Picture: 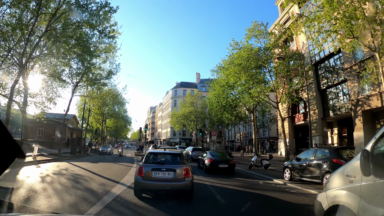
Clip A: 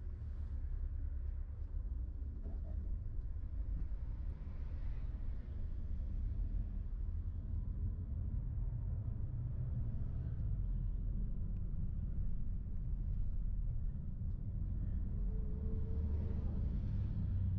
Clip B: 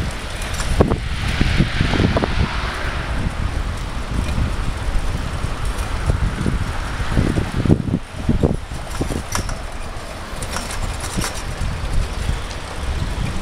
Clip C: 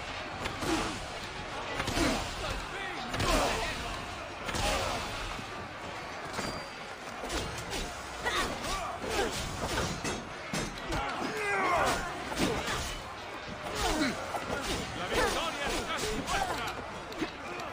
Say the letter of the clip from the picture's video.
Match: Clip A